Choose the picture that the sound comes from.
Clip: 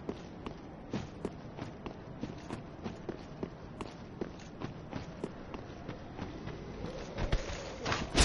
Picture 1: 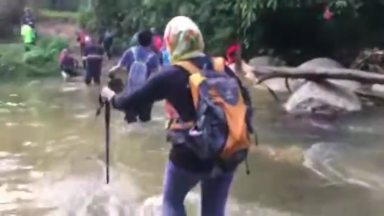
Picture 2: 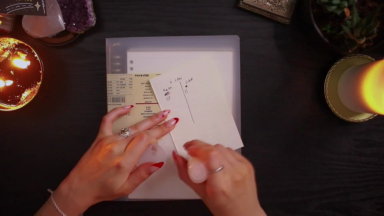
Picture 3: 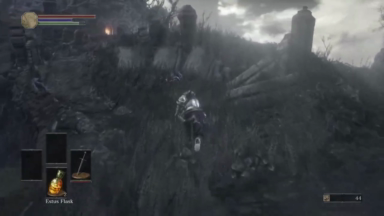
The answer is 3